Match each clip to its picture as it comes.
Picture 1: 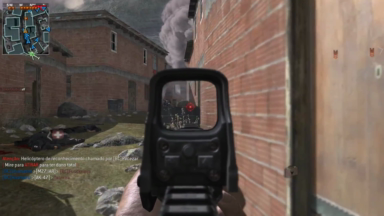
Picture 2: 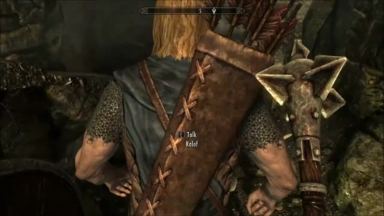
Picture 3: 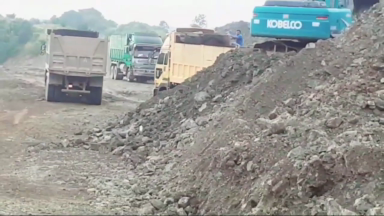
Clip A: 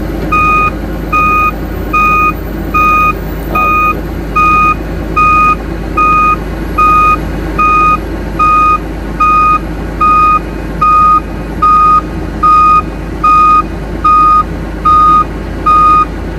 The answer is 3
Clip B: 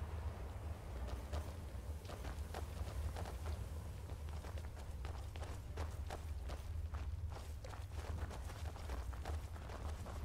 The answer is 2